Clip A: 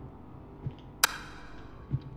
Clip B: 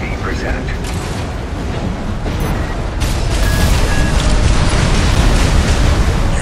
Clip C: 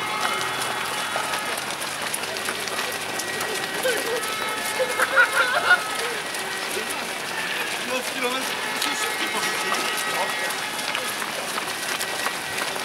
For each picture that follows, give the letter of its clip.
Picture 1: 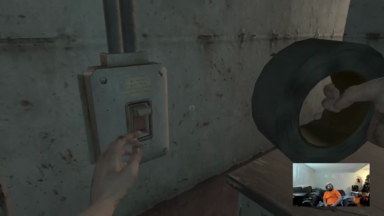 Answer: A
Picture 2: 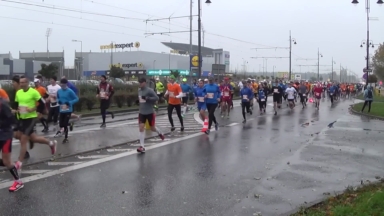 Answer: C